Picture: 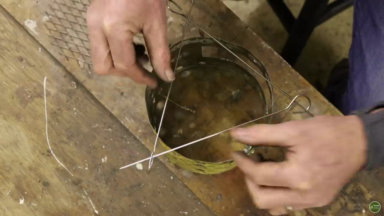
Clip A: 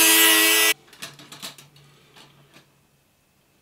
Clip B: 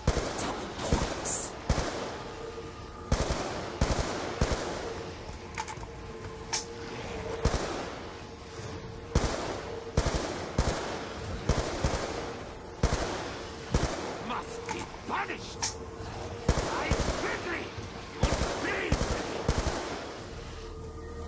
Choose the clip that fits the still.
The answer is A